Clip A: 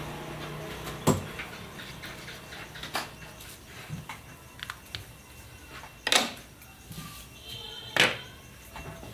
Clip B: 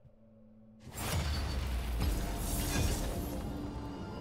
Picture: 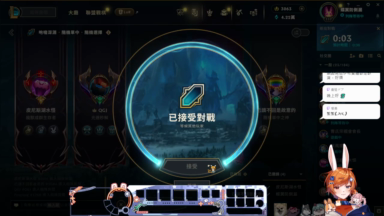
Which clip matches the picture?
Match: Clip B